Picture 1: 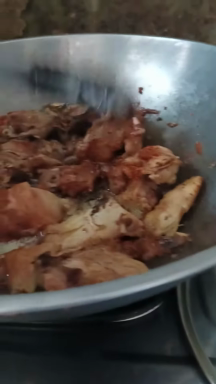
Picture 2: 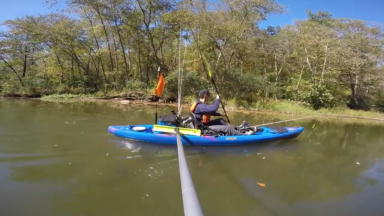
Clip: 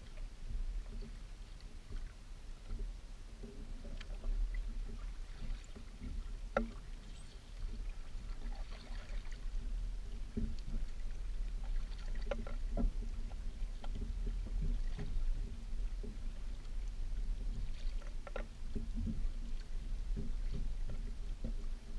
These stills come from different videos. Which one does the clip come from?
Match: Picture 2